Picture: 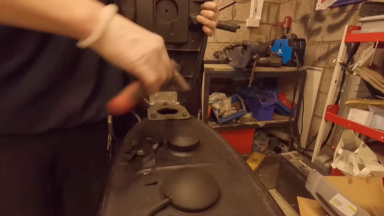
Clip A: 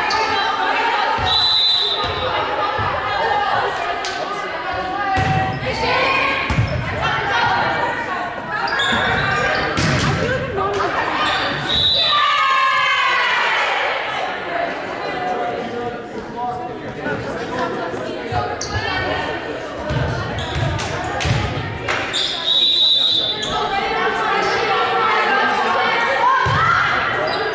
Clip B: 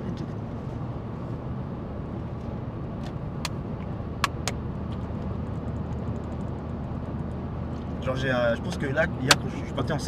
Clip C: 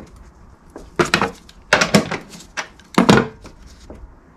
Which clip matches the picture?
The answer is C